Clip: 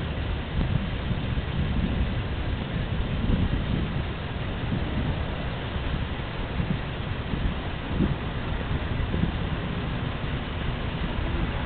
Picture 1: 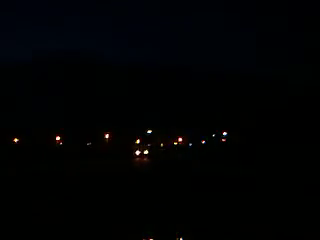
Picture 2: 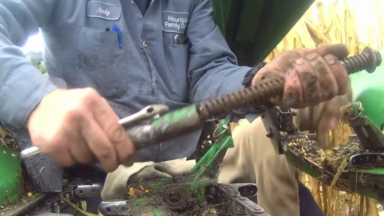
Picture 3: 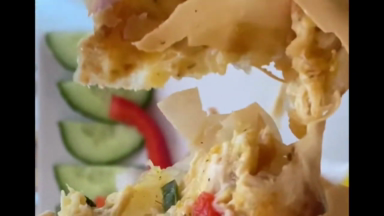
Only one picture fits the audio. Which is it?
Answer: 1